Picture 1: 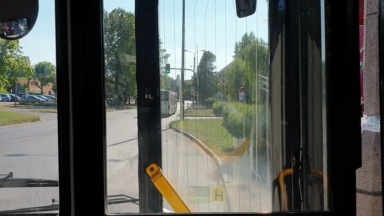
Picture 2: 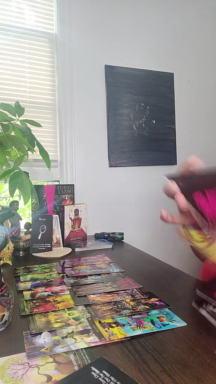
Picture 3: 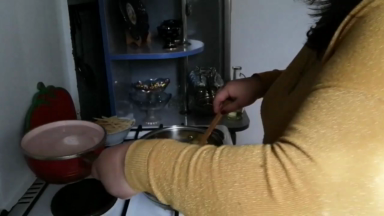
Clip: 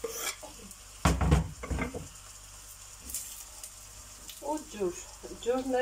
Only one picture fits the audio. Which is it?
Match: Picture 3